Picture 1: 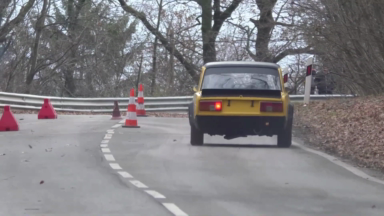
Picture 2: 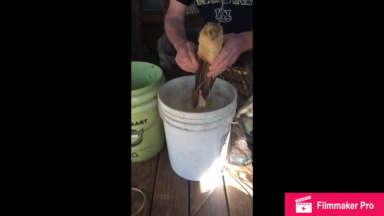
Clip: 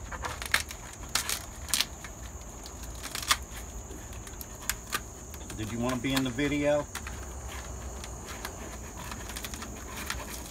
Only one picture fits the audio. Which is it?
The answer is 2